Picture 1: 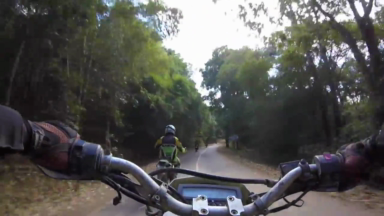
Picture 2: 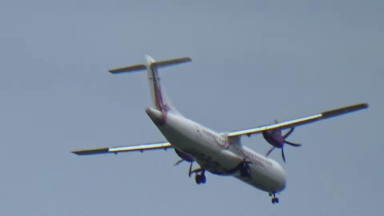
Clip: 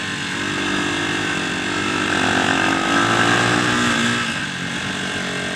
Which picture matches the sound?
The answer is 1